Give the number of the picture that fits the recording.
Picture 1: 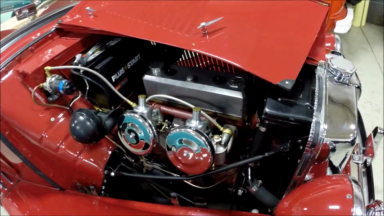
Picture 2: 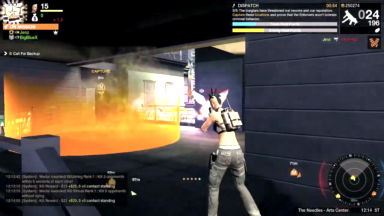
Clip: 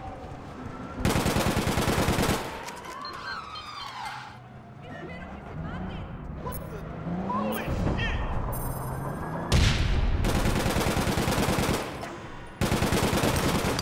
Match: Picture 2